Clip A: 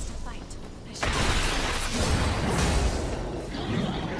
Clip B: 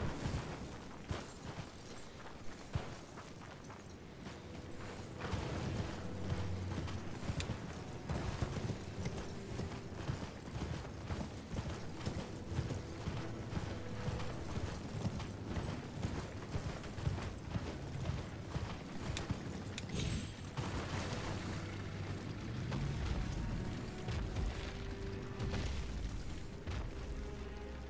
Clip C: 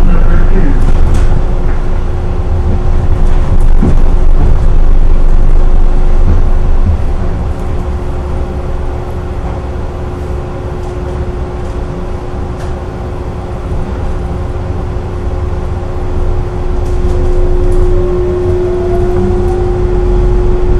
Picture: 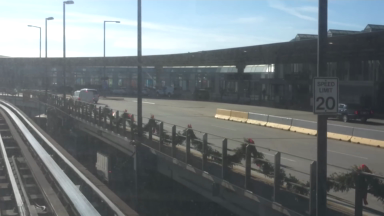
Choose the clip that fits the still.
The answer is C